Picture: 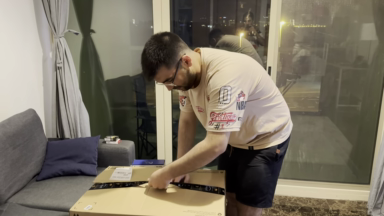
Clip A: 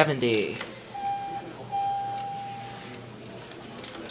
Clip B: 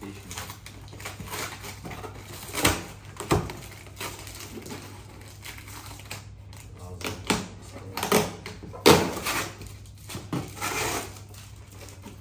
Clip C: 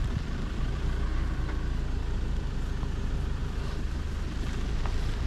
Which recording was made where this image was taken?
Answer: B